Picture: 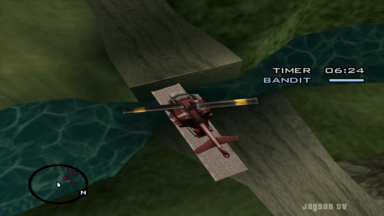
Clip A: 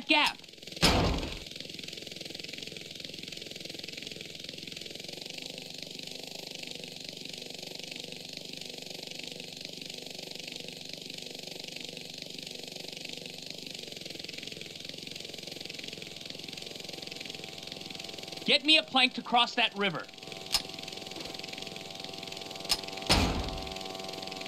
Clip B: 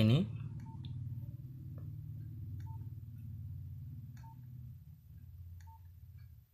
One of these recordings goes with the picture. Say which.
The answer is A